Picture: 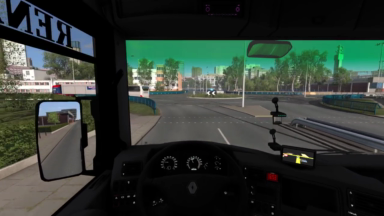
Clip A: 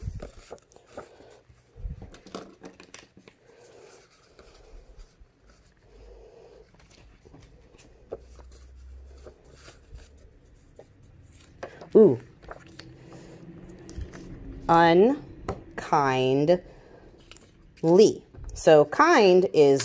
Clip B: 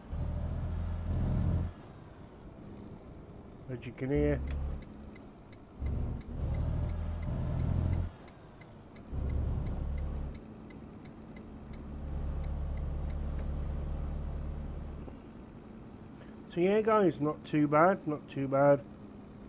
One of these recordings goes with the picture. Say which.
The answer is B